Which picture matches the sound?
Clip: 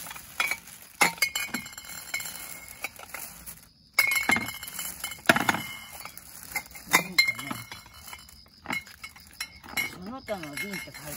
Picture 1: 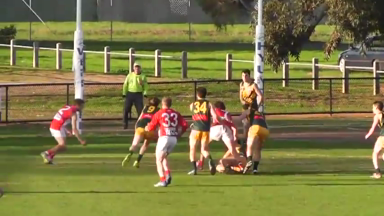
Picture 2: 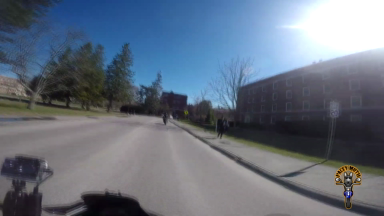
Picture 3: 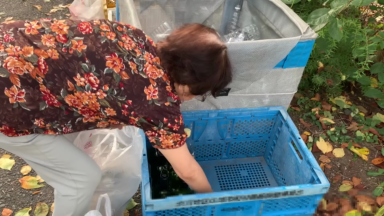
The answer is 3